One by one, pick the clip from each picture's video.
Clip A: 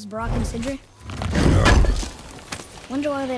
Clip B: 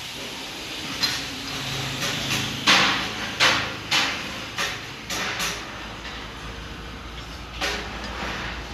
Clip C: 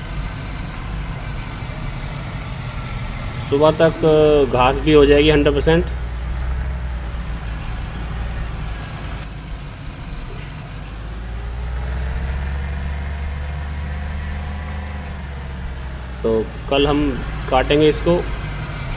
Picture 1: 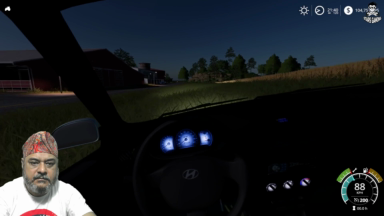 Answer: C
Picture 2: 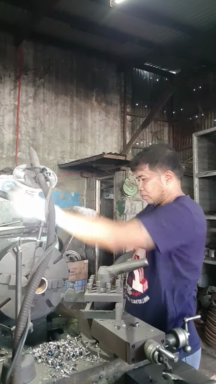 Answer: B